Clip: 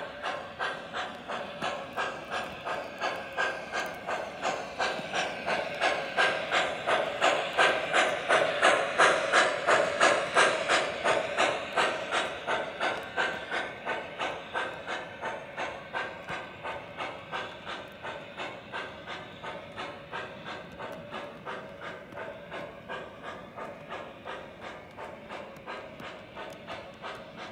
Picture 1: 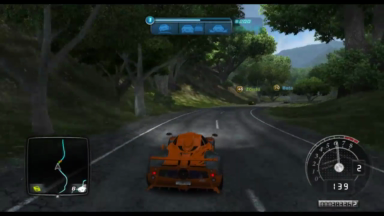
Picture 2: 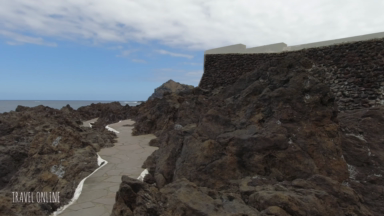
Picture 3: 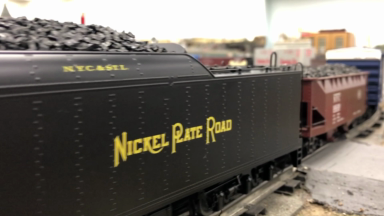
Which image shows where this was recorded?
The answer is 3